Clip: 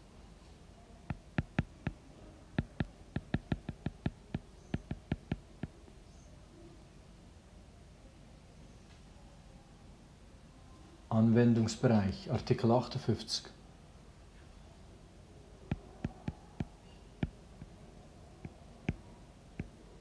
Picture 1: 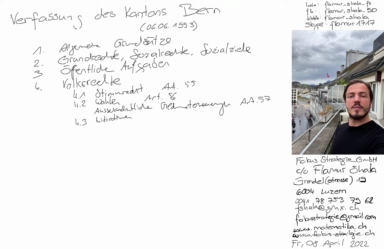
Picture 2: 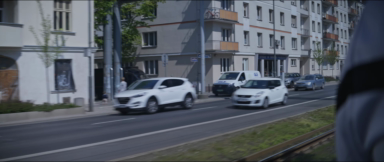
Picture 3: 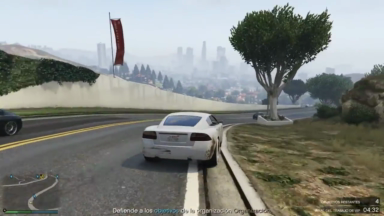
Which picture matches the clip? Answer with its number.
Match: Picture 1